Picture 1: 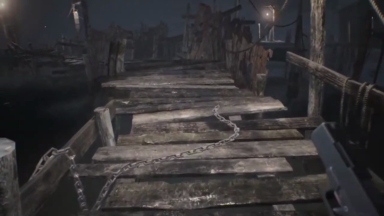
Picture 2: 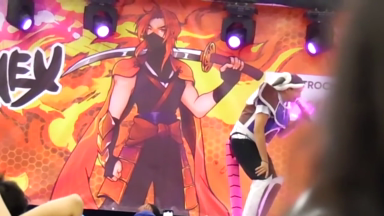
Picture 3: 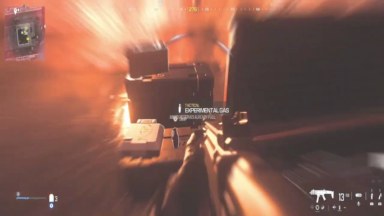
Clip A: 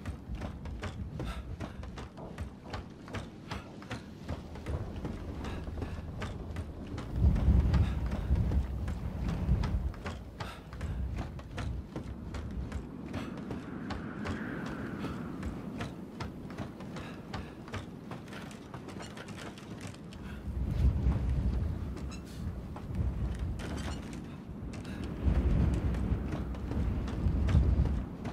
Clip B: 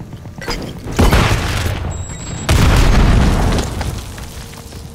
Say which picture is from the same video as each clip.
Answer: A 1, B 3